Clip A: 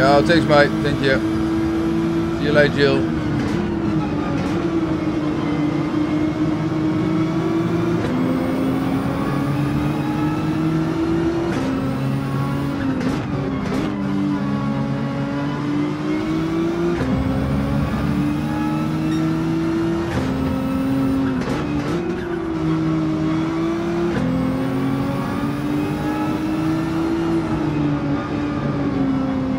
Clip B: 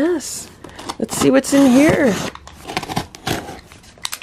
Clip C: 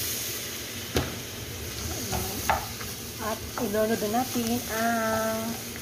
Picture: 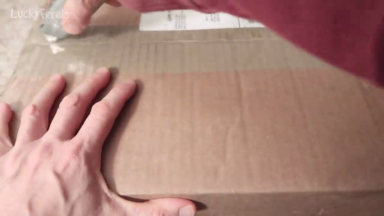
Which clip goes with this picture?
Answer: B